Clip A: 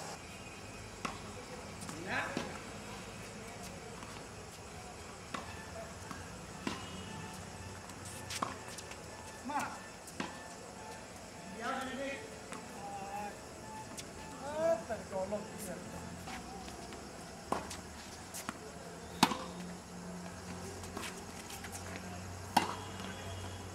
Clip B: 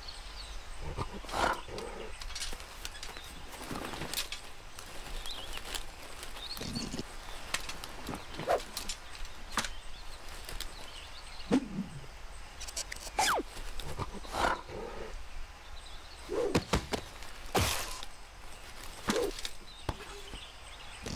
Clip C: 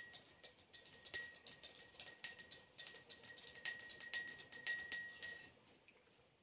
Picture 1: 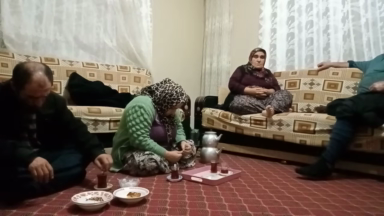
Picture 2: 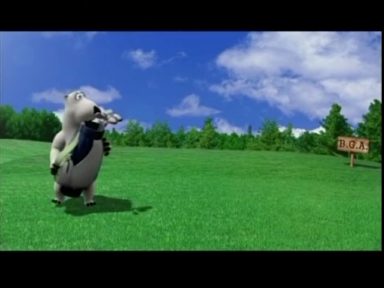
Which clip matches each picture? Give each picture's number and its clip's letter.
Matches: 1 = C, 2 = B